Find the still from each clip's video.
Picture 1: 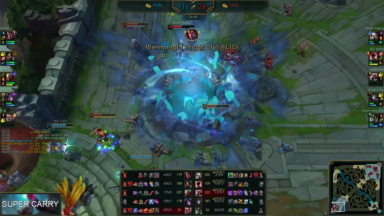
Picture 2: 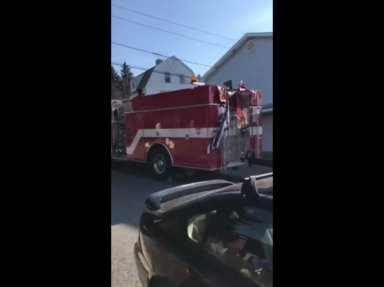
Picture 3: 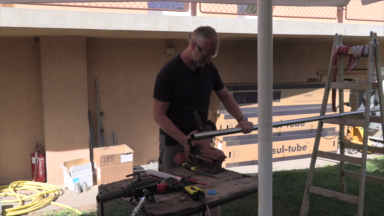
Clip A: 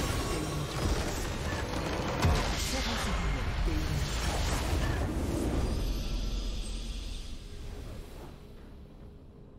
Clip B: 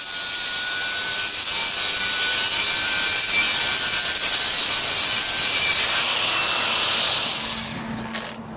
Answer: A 1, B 3